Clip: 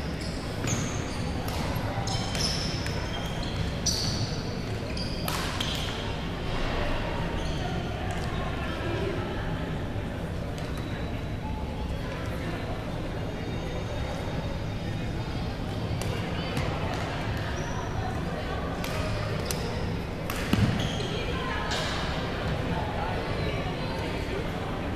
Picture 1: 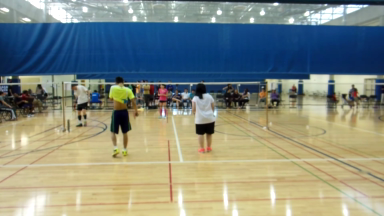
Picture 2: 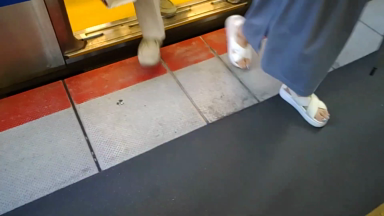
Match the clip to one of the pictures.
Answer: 1